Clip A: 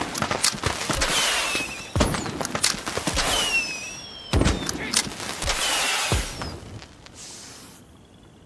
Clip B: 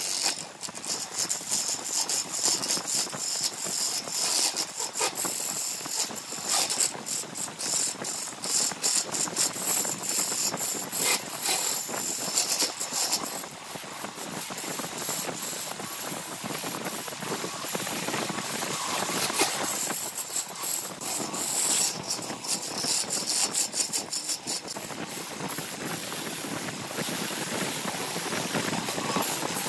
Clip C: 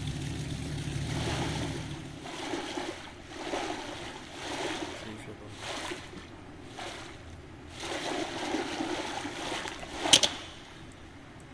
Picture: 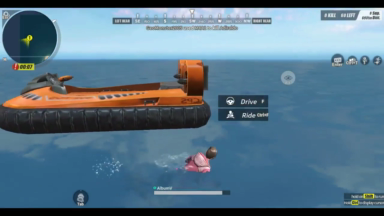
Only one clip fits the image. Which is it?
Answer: C